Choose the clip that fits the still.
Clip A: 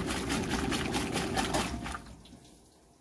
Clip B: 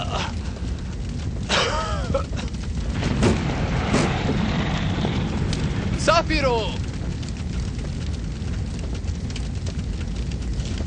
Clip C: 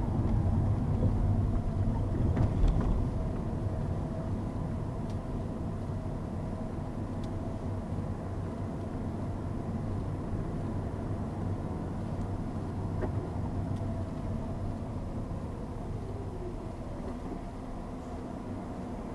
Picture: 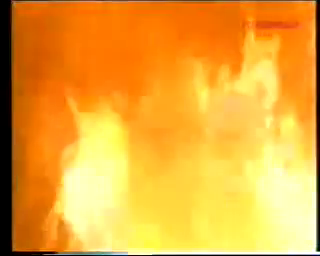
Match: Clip B